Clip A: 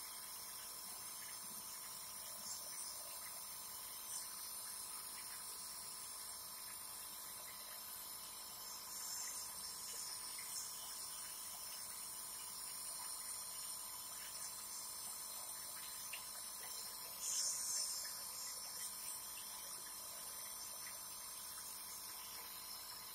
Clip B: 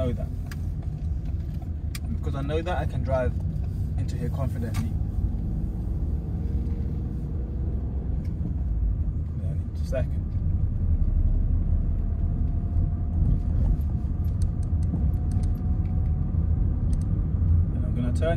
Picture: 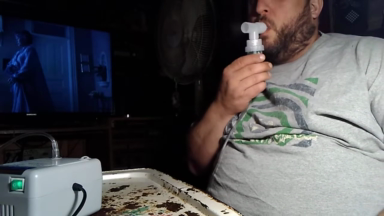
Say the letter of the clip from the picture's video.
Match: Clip A